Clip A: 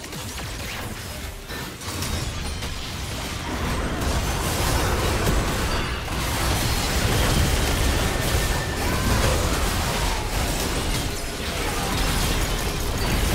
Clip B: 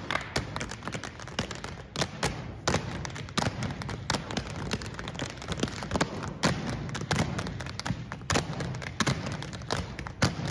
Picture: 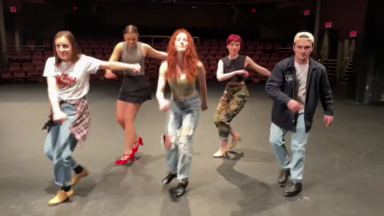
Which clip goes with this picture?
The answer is B